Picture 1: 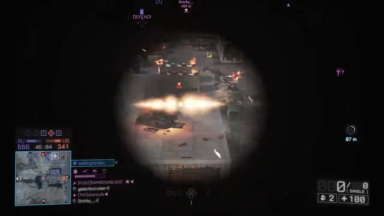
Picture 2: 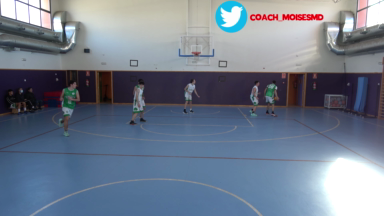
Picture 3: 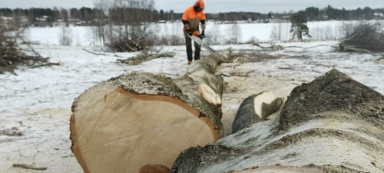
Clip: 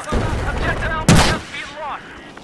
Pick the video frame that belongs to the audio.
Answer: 1